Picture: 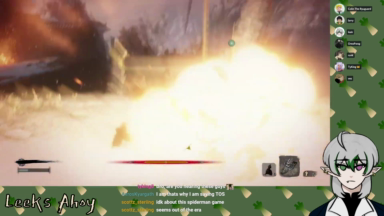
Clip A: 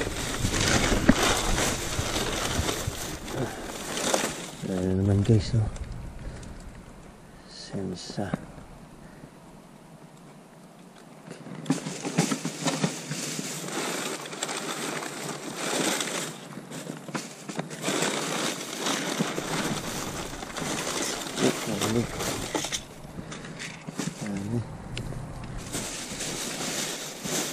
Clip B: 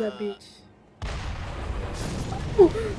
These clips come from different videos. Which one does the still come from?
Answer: B